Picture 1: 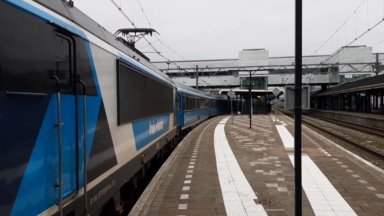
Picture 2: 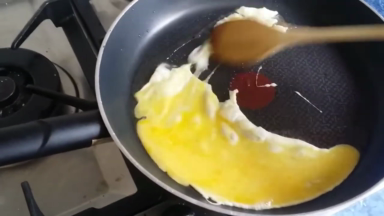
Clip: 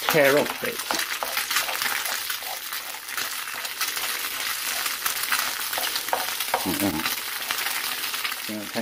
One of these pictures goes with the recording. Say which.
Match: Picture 2